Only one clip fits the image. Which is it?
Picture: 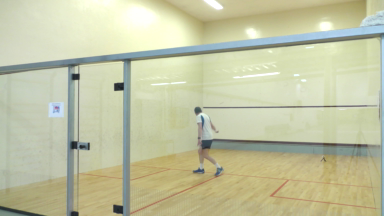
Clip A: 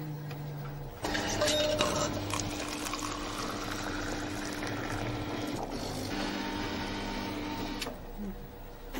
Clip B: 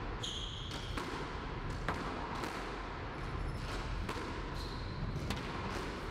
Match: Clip B